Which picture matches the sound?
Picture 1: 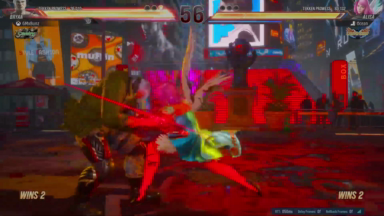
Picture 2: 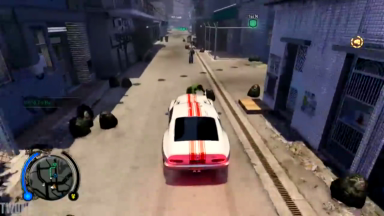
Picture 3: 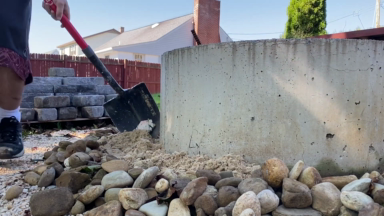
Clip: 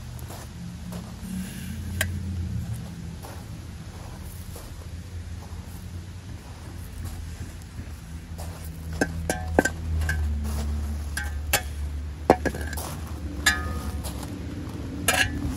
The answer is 3